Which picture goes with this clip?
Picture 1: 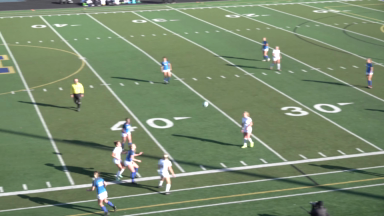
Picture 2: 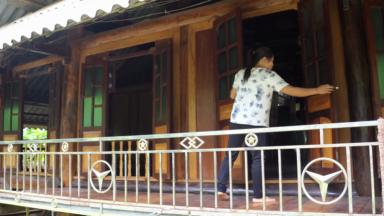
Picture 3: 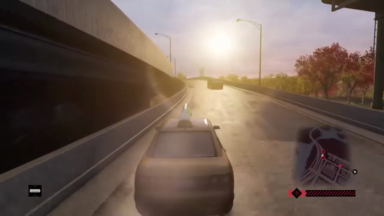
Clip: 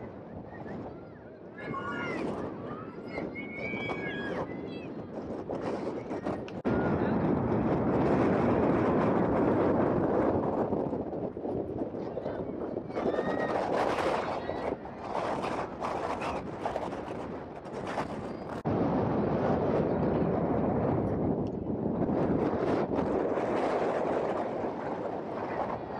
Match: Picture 1